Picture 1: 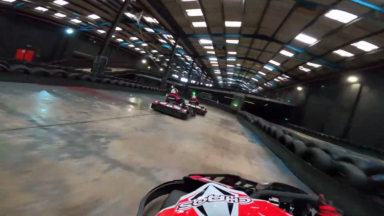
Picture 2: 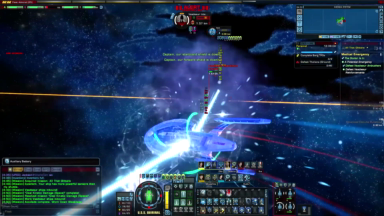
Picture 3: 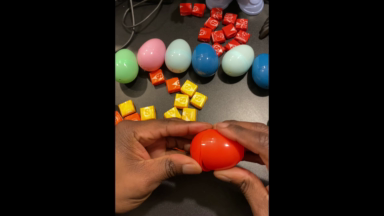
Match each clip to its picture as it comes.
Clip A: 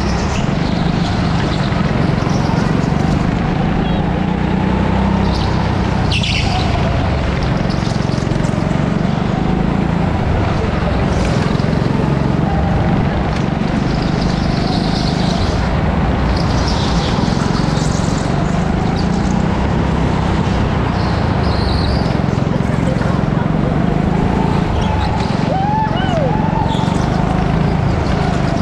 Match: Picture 1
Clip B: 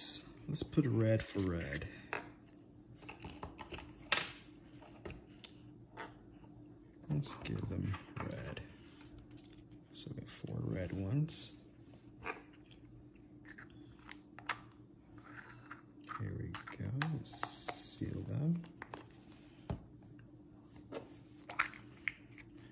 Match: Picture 3